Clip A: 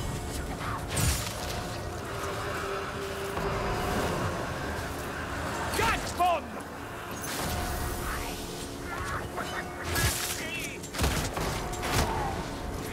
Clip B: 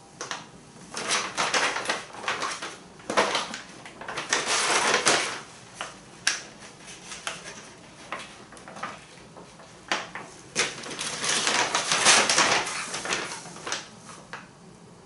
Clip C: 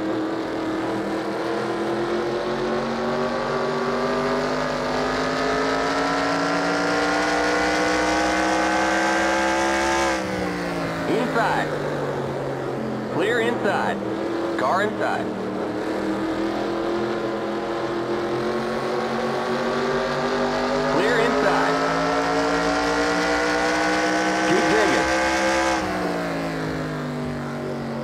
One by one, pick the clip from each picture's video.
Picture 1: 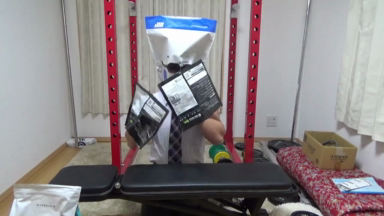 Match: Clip B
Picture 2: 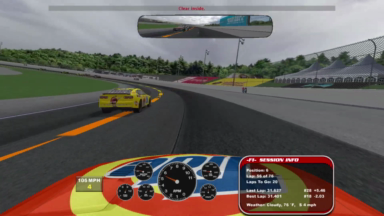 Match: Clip C